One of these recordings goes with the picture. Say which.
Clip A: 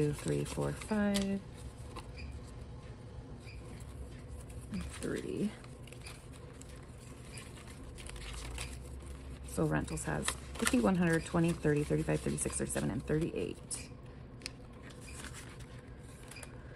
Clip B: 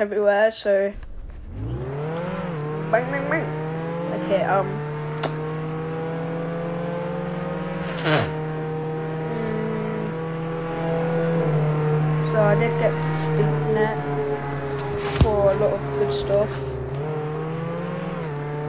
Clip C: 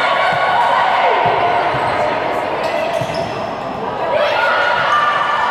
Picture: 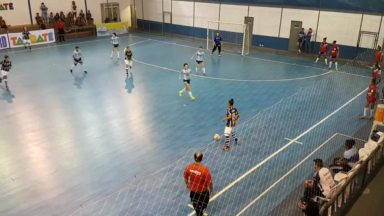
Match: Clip C